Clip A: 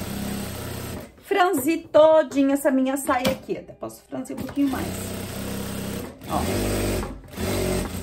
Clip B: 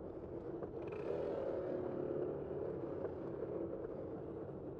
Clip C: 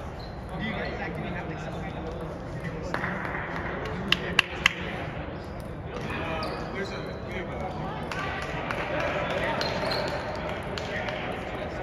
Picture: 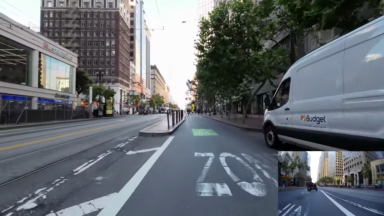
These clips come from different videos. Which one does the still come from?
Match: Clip B